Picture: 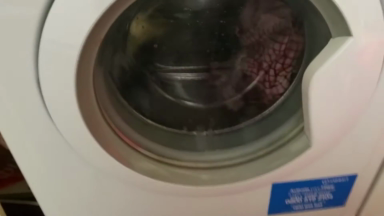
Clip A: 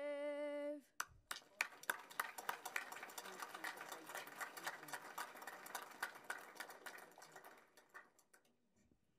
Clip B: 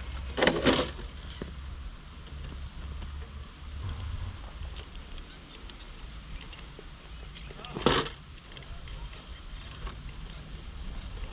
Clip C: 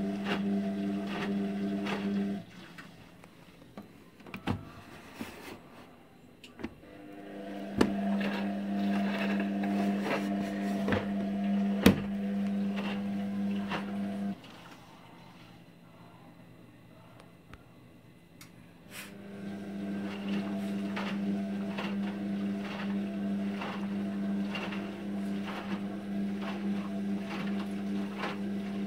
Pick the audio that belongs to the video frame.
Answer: C